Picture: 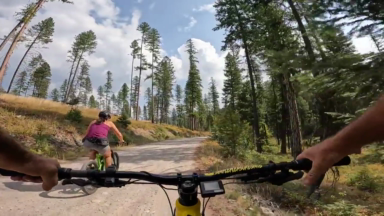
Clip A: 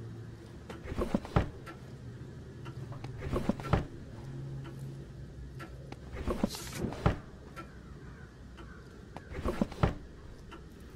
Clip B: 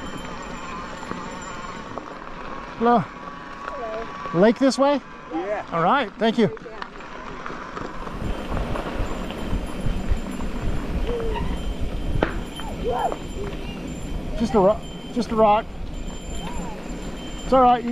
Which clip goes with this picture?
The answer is B